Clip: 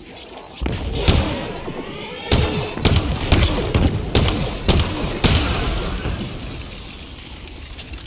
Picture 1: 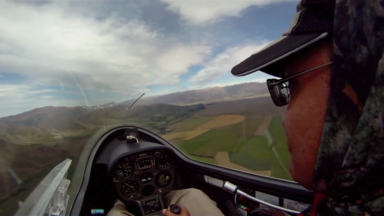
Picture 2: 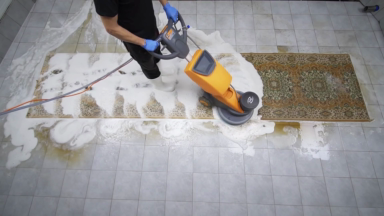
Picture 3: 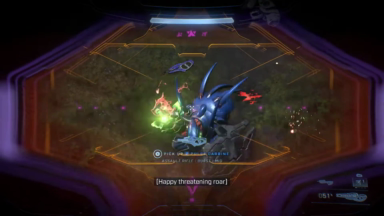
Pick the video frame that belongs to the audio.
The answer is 3